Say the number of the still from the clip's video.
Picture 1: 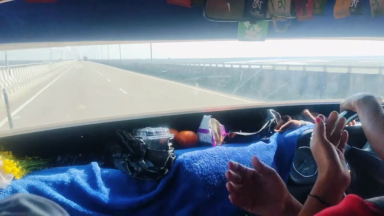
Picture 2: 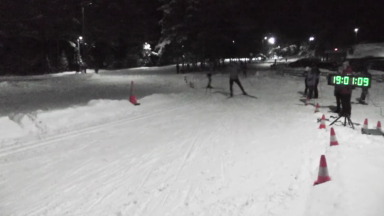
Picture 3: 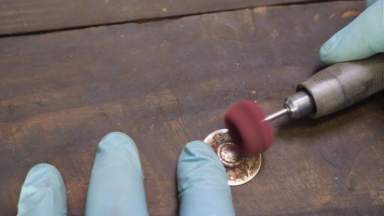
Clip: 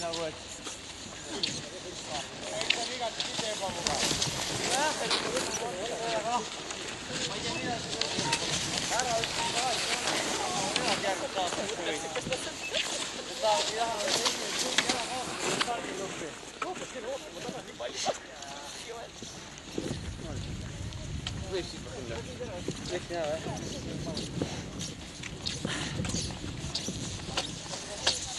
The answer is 2